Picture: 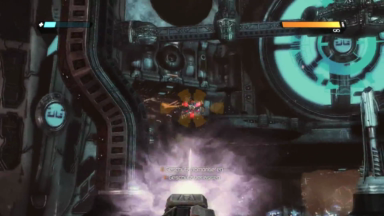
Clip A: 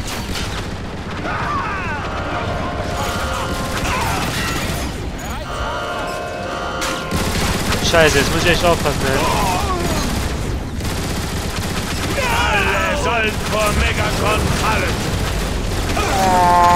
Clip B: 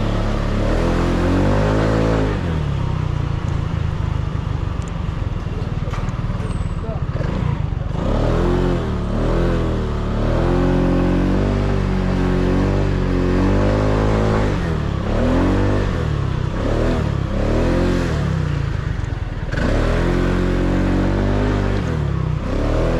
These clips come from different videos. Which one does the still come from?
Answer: A